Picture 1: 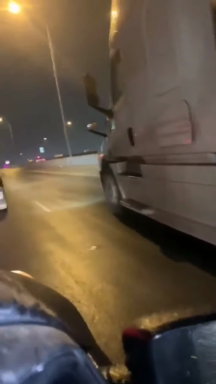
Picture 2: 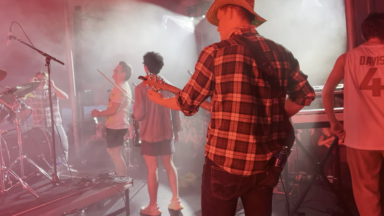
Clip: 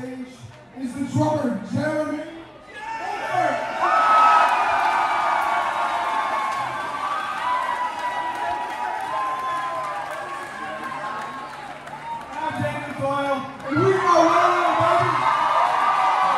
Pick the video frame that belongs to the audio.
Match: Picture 2